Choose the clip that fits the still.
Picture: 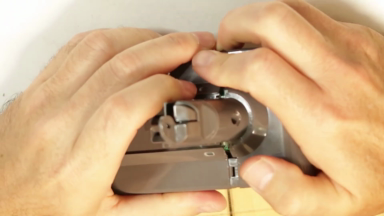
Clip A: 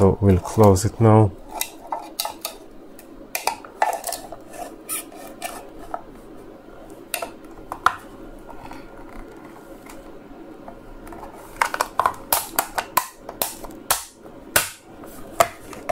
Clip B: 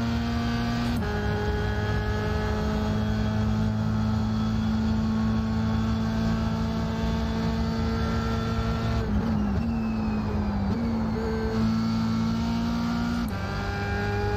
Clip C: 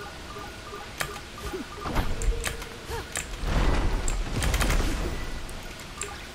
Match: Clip A